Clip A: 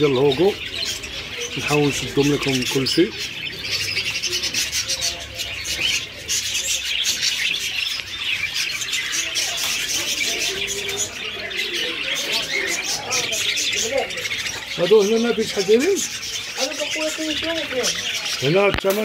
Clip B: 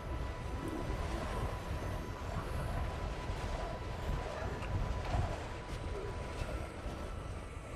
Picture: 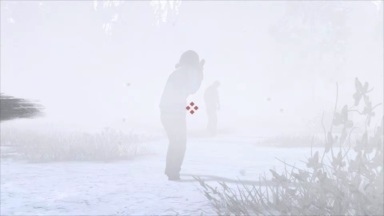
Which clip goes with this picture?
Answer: B